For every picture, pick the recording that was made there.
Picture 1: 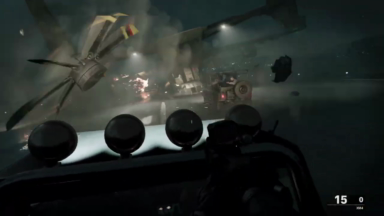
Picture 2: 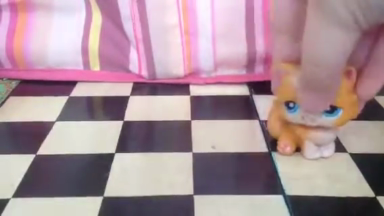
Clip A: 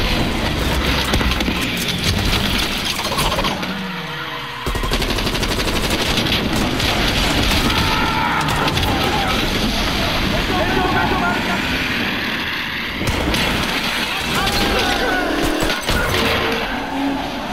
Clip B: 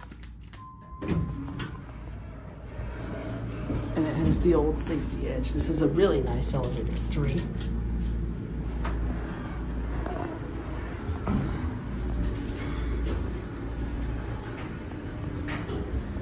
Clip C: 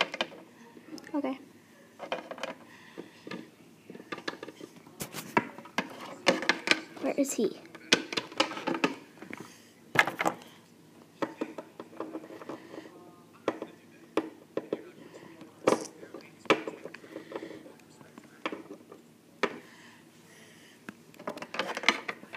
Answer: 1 A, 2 C